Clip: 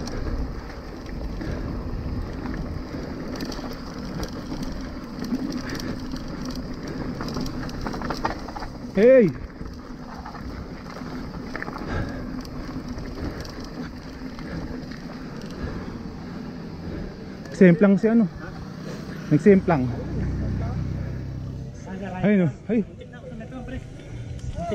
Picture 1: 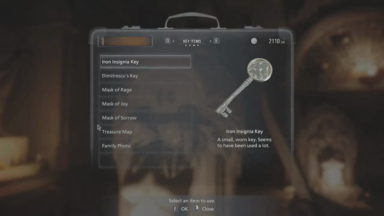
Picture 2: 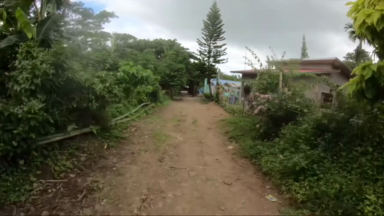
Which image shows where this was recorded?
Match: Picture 2